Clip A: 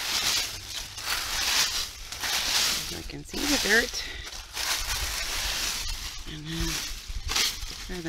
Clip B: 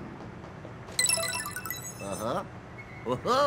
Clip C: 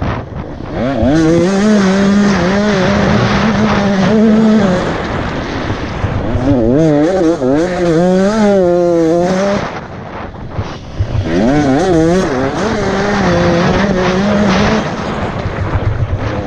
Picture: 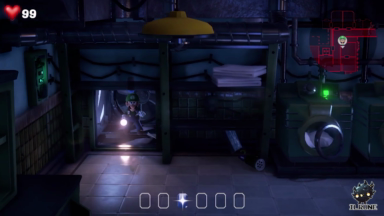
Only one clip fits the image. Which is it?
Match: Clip B